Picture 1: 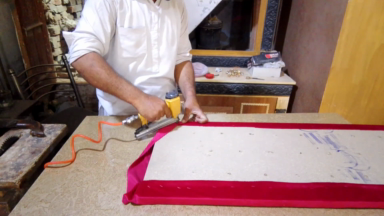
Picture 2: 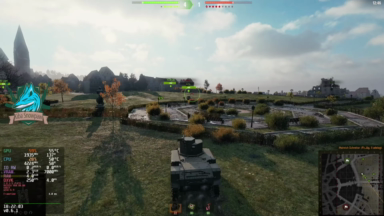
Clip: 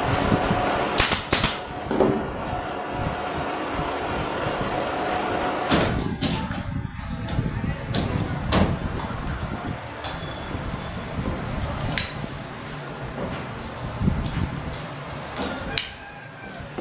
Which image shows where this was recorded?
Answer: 1